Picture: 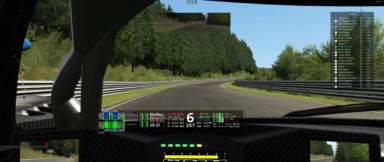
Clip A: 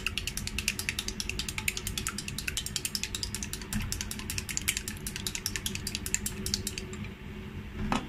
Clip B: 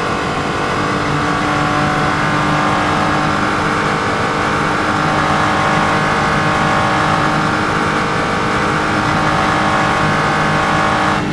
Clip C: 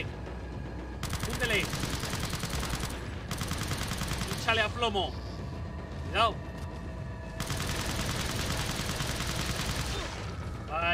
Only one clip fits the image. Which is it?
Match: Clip B